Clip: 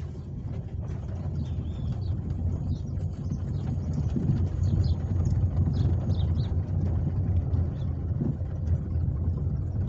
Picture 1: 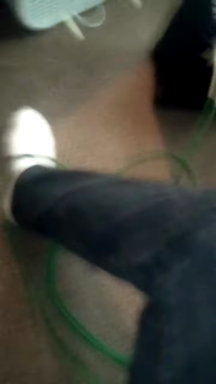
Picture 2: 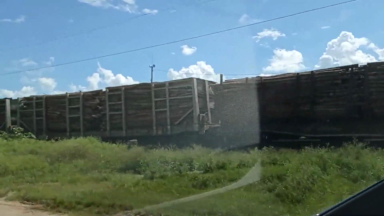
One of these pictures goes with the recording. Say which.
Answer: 2